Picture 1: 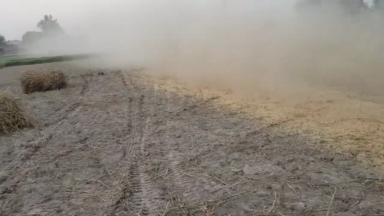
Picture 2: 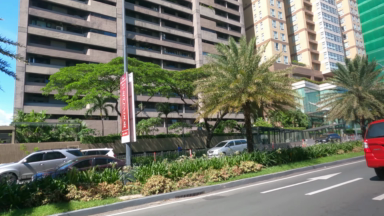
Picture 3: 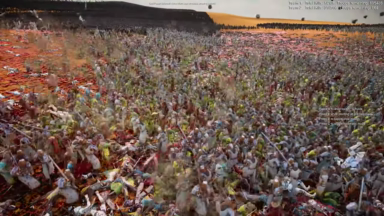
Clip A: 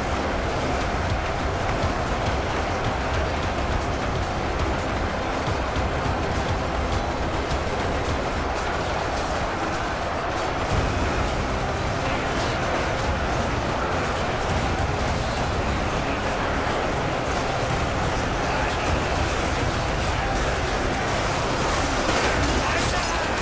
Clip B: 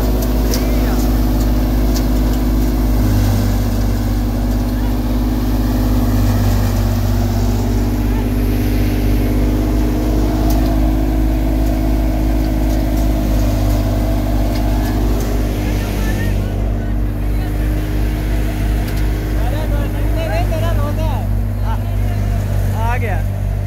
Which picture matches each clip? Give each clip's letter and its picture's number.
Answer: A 3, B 1